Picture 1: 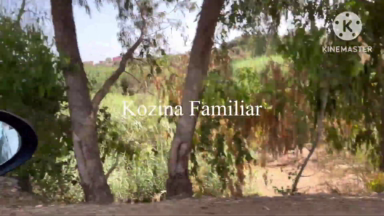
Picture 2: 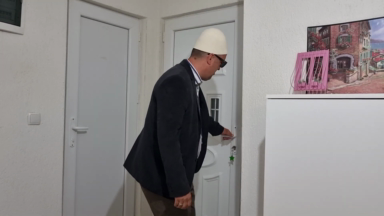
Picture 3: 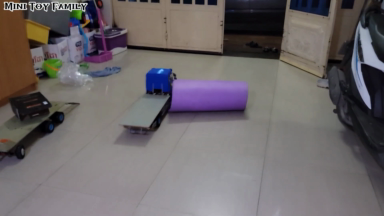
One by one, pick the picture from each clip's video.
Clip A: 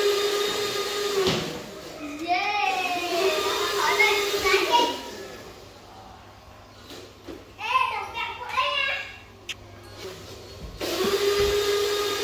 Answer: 3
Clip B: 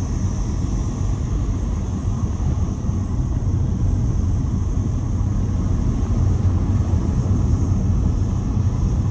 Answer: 1